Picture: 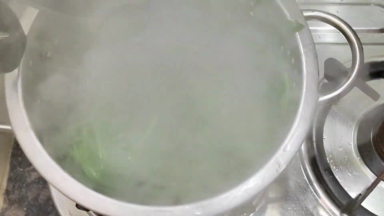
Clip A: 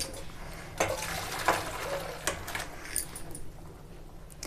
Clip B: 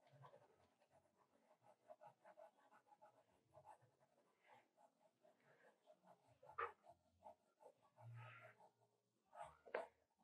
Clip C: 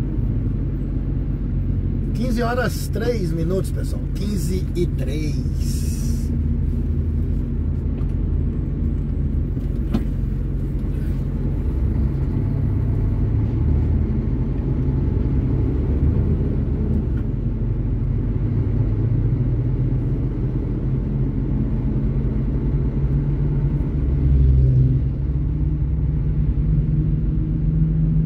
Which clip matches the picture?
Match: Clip A